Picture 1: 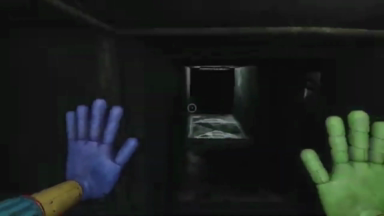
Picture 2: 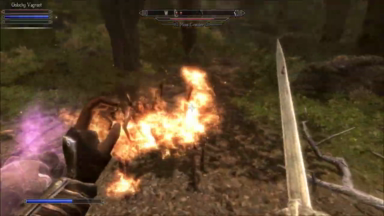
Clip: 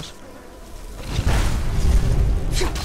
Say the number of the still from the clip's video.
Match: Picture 2